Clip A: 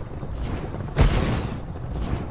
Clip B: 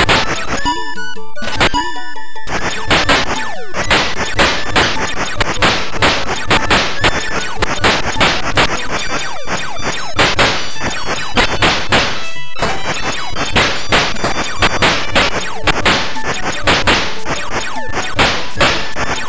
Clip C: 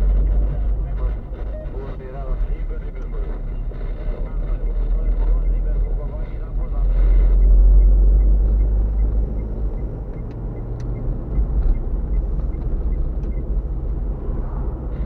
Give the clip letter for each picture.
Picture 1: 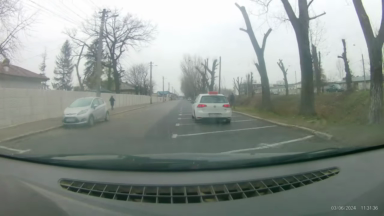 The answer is C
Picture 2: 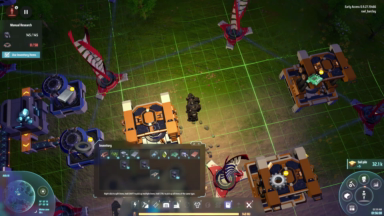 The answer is A